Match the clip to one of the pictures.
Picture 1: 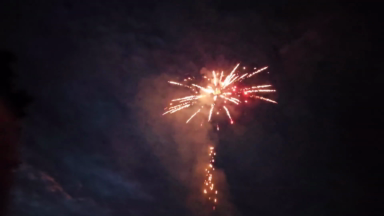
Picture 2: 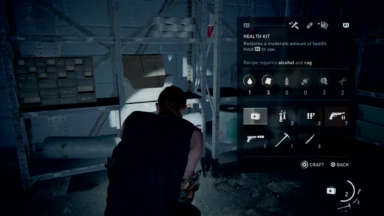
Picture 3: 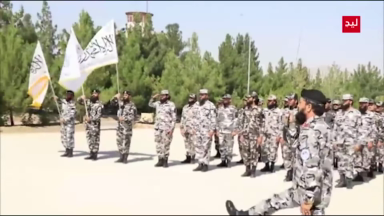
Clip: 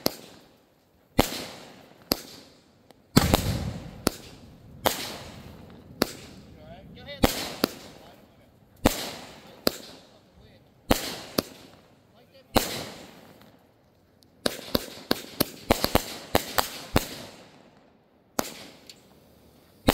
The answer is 1